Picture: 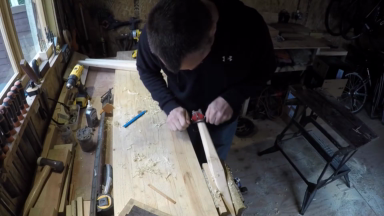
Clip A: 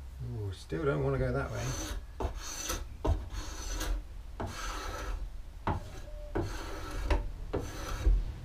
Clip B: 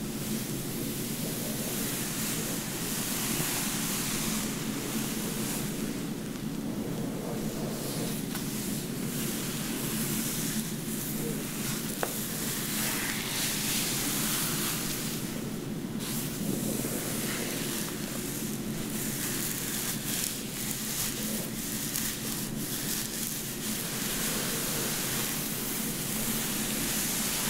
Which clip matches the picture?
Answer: A